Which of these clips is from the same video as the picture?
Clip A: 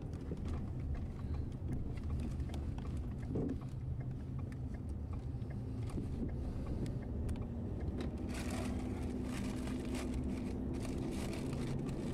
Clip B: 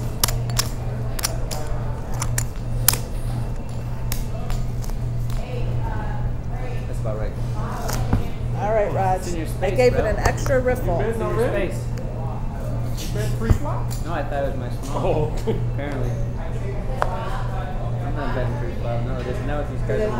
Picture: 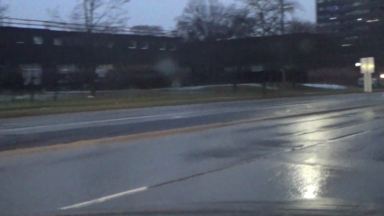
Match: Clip A